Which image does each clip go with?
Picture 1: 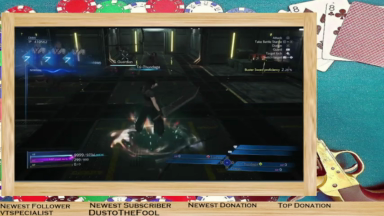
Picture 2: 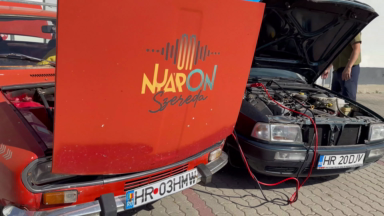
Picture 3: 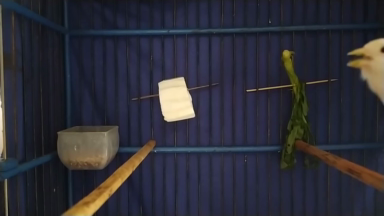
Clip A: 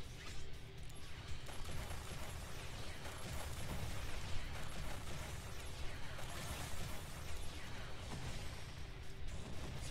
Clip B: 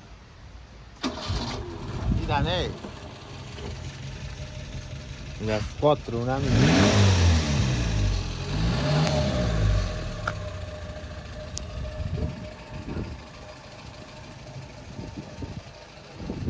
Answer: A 1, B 2